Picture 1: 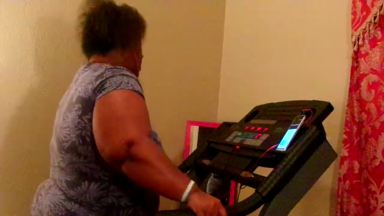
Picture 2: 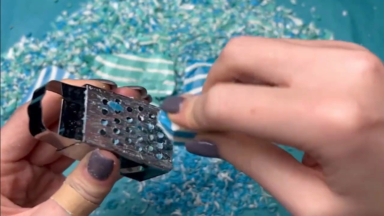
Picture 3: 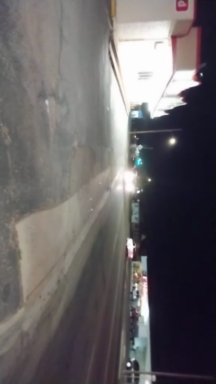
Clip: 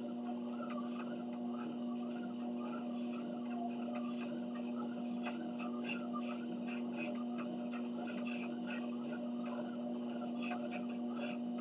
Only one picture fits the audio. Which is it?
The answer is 1